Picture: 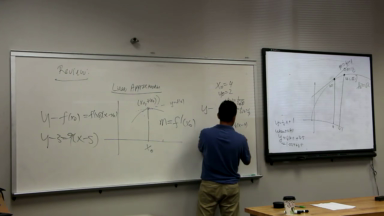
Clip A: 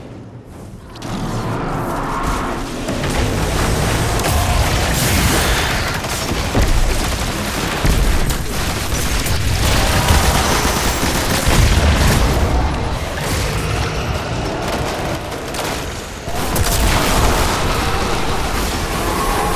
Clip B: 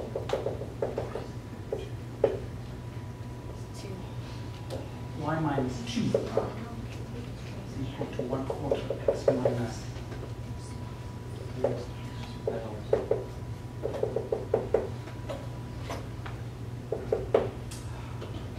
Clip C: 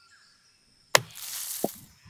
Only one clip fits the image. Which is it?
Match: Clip B